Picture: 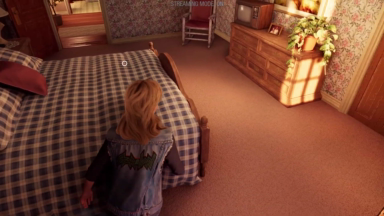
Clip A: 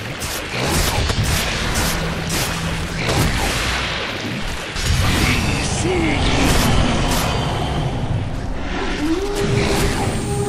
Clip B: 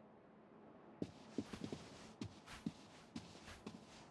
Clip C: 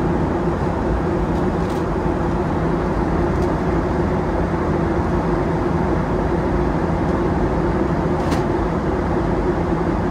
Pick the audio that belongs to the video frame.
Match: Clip B